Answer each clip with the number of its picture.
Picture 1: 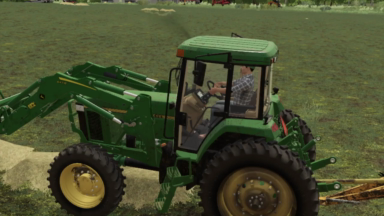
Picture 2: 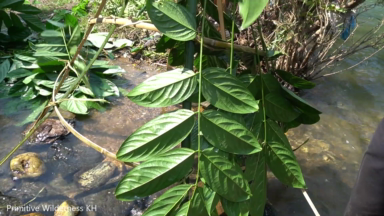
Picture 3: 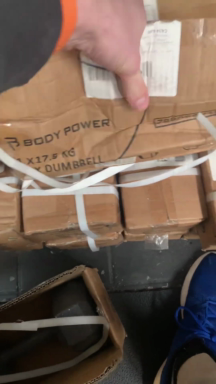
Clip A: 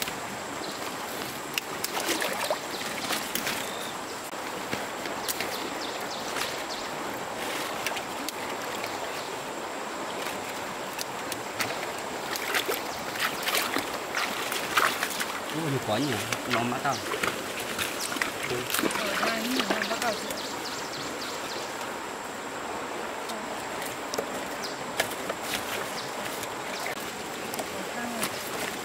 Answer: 2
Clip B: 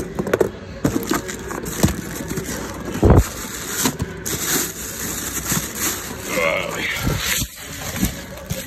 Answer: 3